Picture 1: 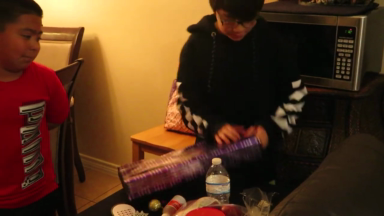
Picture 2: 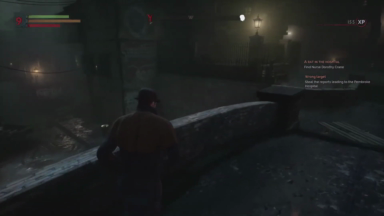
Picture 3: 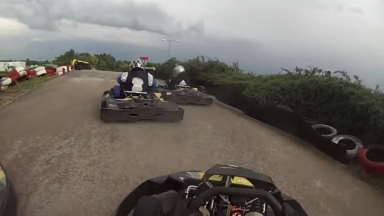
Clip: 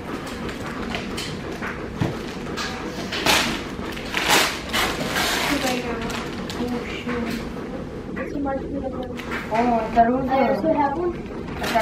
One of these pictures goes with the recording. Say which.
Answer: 1